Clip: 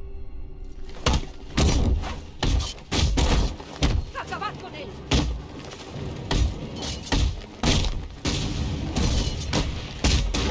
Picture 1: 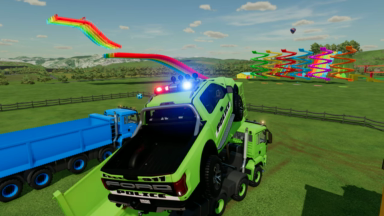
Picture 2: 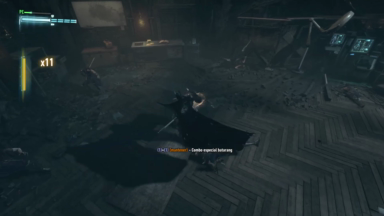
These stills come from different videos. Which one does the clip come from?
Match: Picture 2